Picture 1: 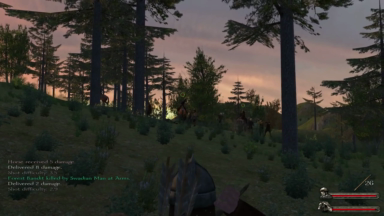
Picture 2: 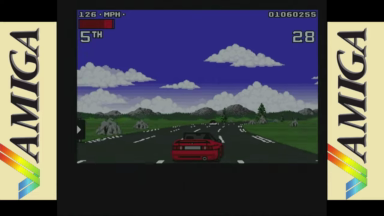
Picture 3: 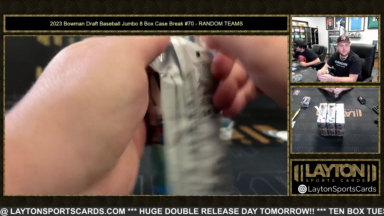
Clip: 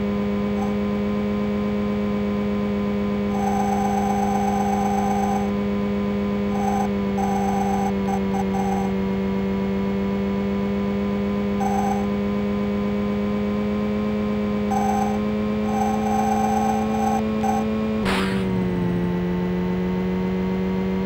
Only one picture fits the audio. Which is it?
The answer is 2